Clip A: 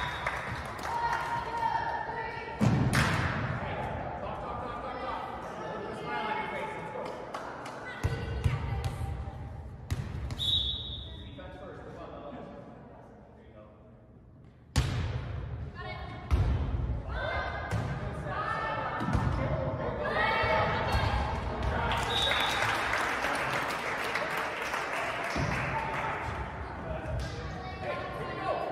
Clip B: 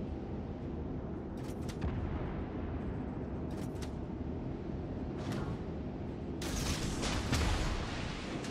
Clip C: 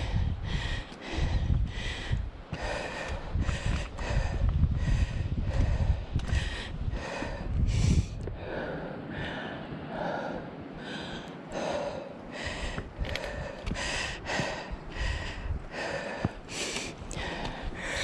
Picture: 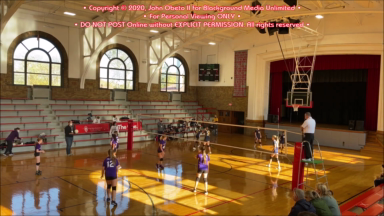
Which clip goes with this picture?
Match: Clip A